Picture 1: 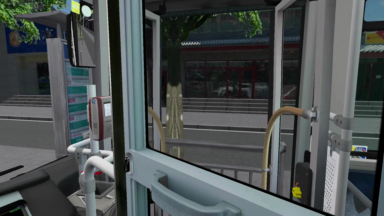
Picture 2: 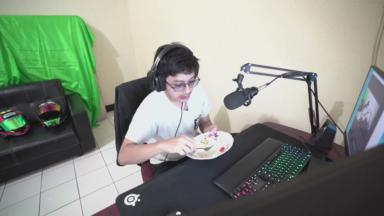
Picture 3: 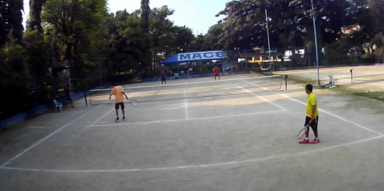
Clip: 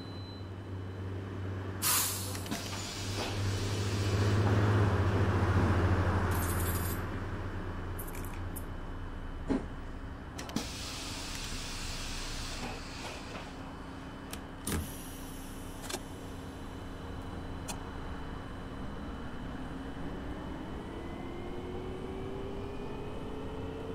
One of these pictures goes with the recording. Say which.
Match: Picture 1